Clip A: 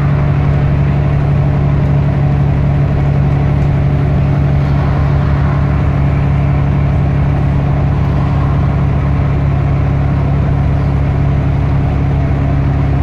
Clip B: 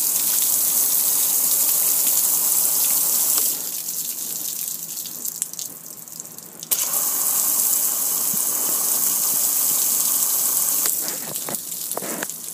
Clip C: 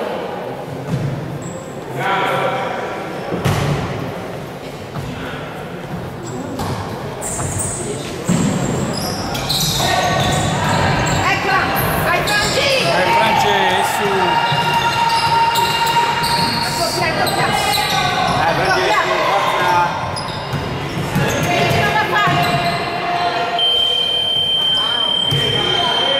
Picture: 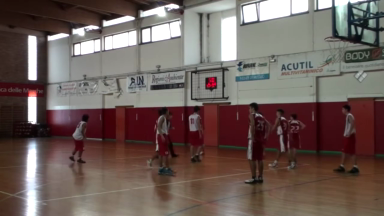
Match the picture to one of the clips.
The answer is C